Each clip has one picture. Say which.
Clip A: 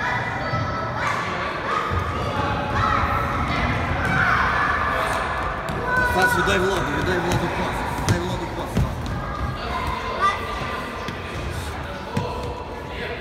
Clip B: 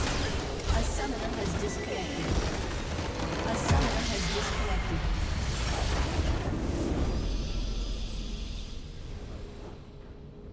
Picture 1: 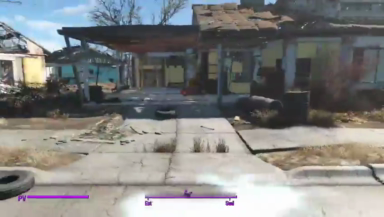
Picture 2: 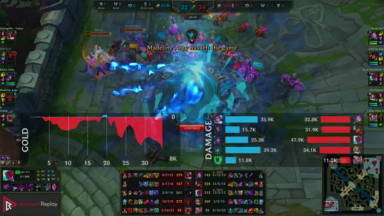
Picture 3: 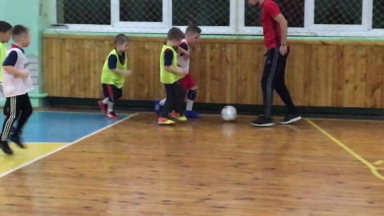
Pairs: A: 3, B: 2